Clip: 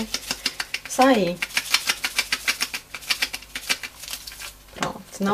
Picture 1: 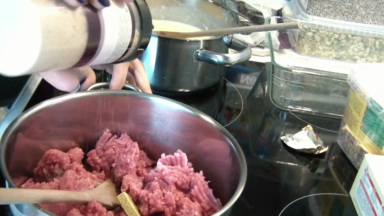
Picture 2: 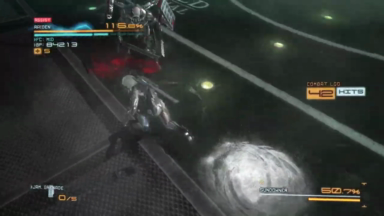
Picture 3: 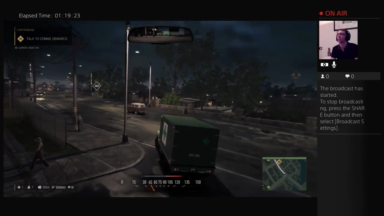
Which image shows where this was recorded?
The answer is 1